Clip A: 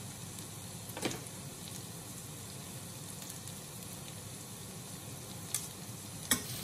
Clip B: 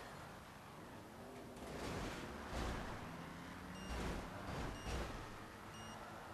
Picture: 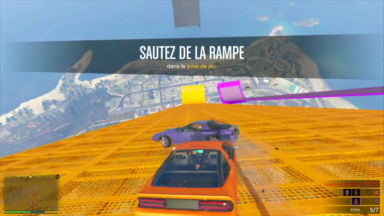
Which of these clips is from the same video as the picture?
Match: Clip B